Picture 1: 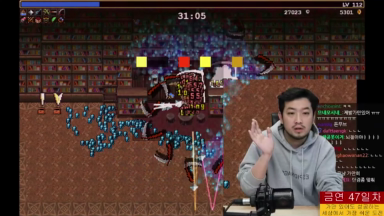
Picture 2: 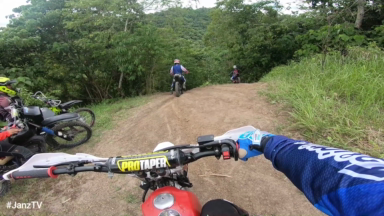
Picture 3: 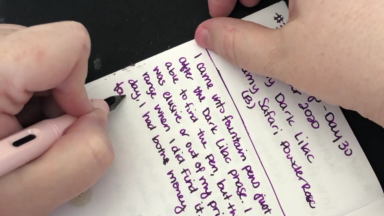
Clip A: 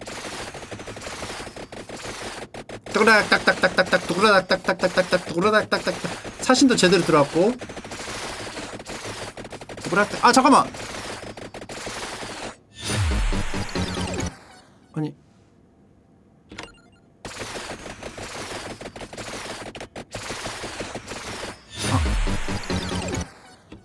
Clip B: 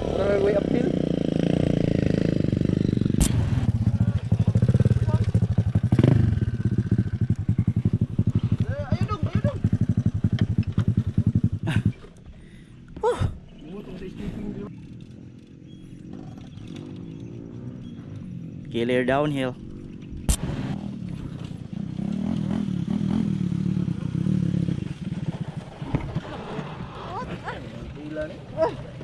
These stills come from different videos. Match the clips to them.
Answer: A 1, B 2